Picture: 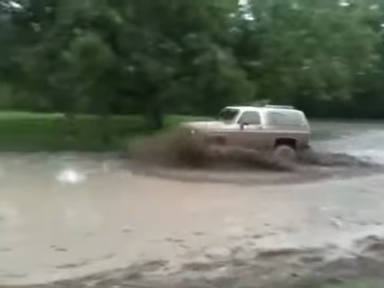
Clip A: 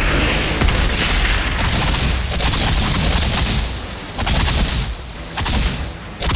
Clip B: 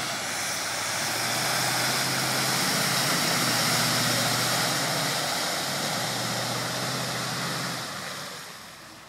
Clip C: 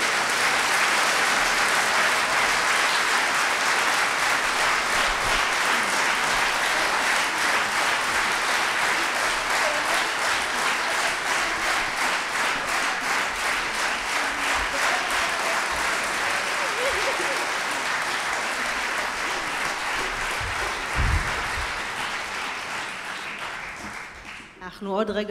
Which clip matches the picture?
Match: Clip B